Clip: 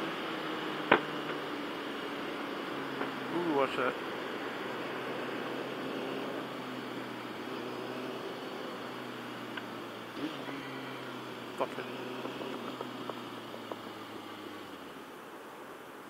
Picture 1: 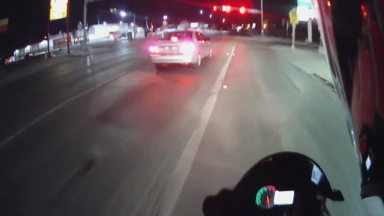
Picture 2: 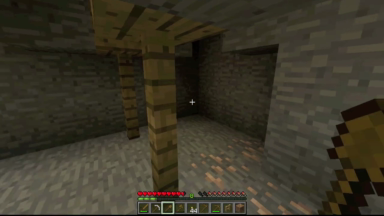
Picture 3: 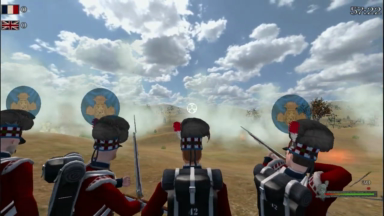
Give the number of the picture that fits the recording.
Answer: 1